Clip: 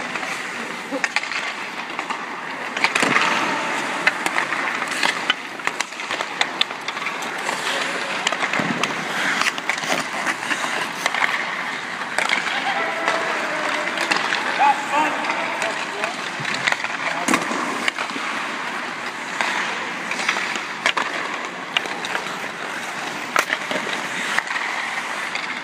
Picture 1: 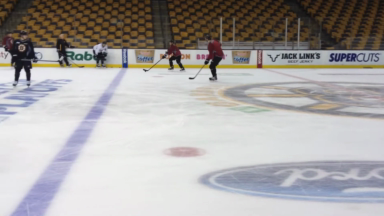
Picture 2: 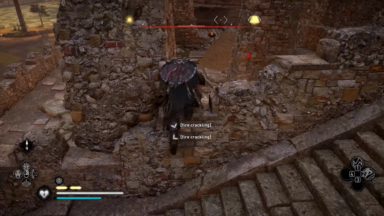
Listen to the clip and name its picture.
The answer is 1